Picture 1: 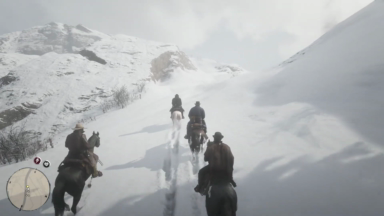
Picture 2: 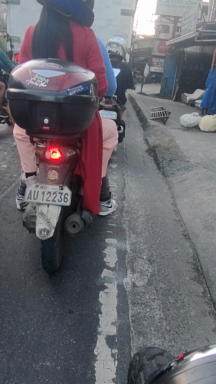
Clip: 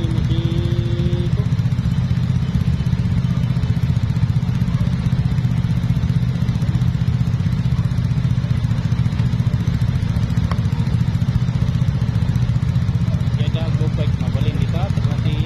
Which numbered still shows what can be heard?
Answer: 2